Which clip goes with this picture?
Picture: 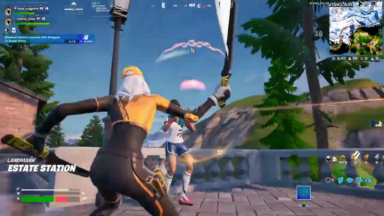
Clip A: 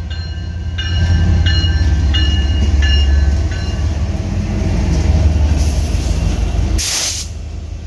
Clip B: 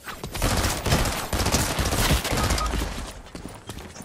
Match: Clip B